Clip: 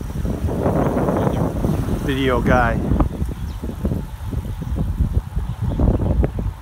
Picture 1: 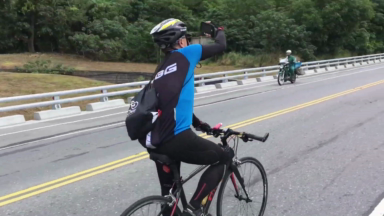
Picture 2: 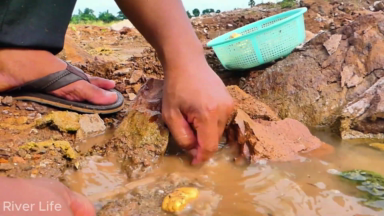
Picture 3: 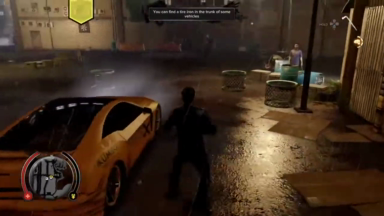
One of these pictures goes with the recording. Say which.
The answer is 1